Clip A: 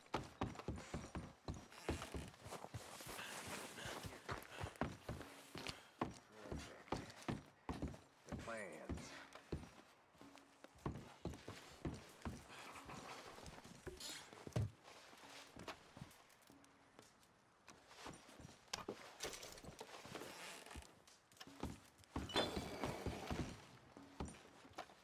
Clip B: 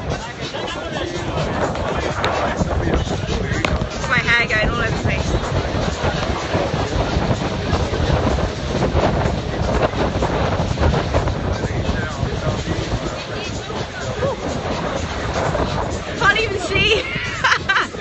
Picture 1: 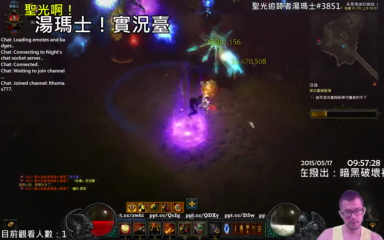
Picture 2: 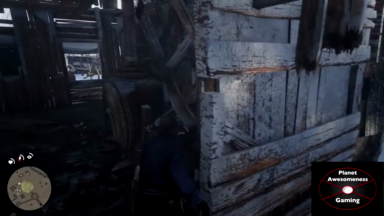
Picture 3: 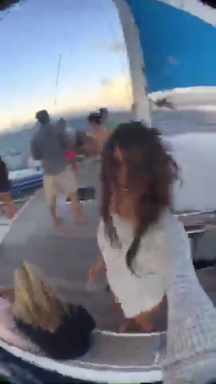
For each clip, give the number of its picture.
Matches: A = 2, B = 3